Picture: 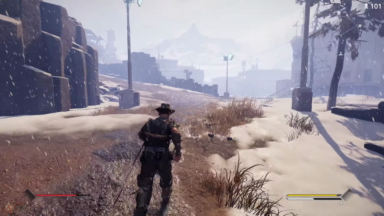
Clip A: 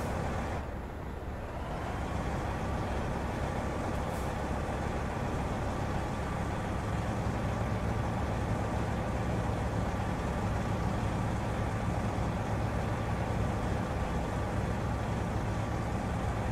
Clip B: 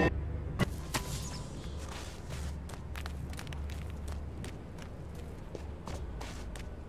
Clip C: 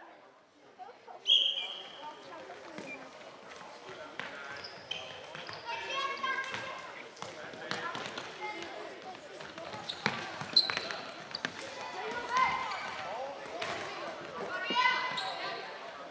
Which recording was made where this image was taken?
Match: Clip B